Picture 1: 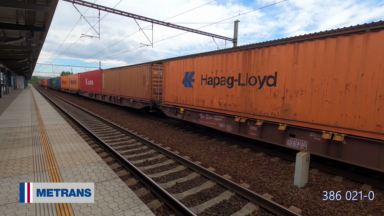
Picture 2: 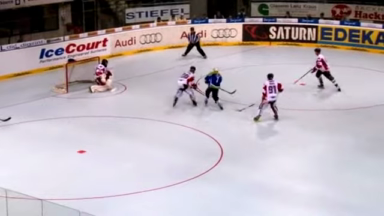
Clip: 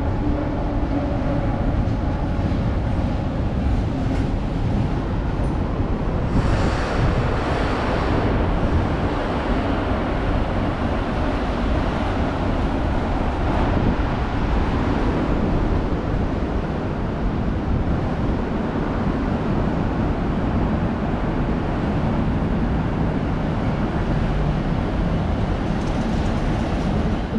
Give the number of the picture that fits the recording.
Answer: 1